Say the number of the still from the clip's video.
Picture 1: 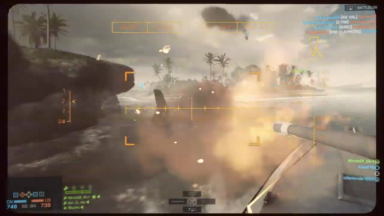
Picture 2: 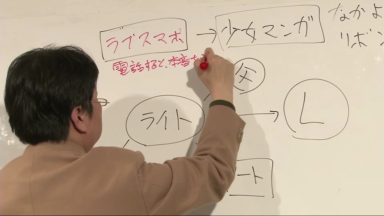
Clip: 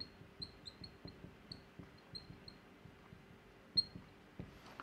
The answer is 2